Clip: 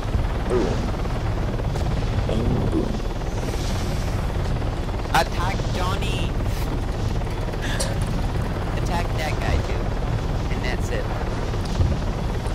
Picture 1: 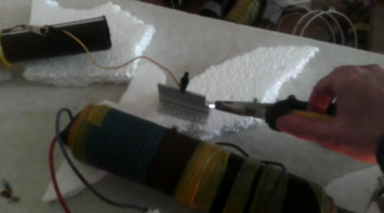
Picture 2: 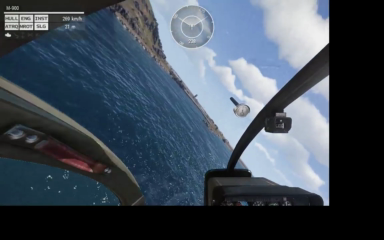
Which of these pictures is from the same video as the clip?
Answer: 2